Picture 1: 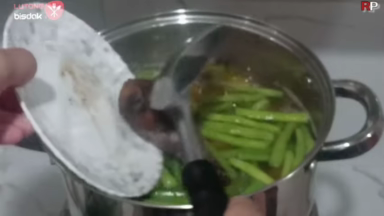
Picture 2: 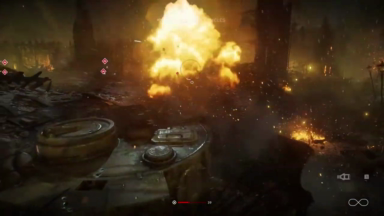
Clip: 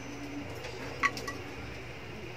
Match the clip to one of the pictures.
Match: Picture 1